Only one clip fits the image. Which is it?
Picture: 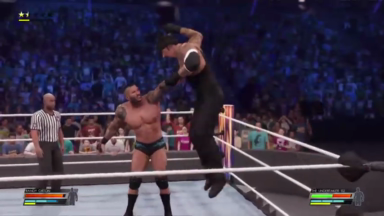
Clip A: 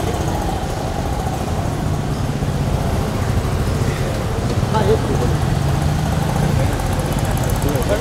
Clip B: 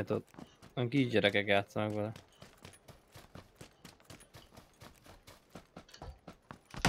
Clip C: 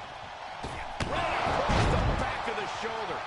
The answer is C